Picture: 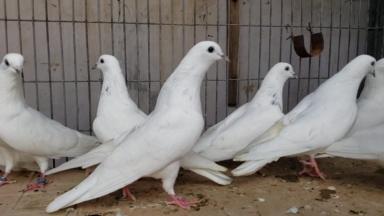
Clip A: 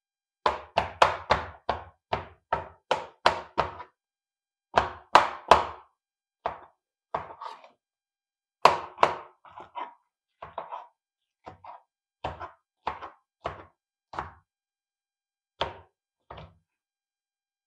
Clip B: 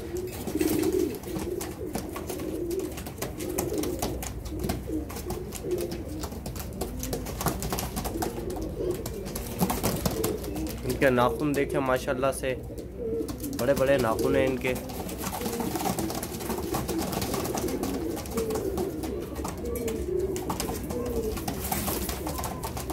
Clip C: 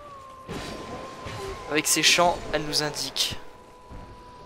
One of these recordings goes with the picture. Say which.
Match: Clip B